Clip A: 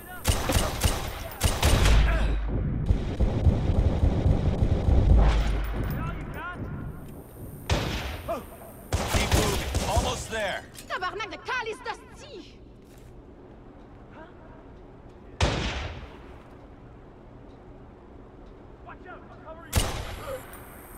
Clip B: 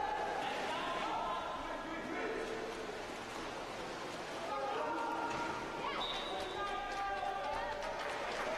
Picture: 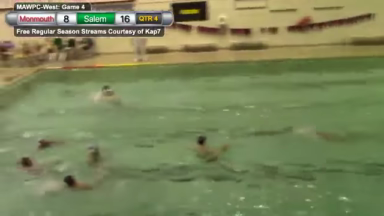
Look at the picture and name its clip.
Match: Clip B